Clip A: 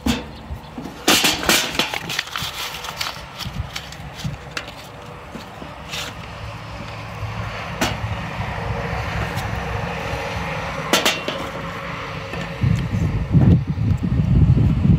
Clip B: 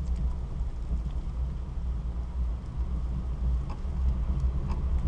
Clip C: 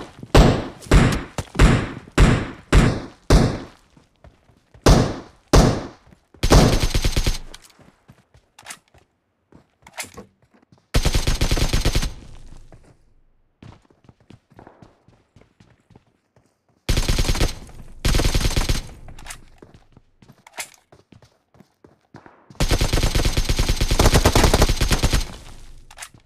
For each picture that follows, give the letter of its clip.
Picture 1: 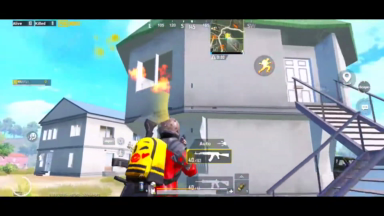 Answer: C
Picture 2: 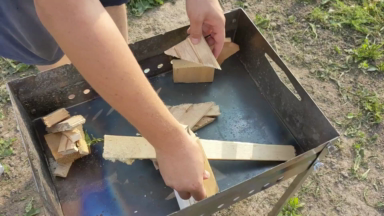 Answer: A